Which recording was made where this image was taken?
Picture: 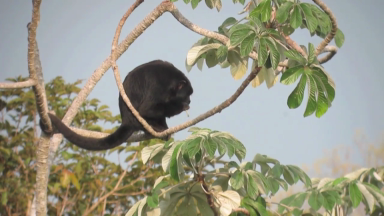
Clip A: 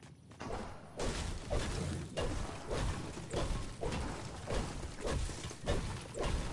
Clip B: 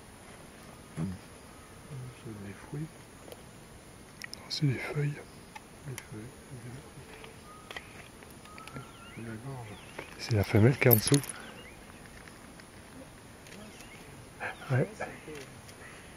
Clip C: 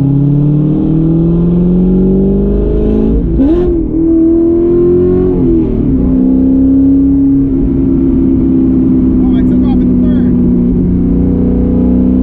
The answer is B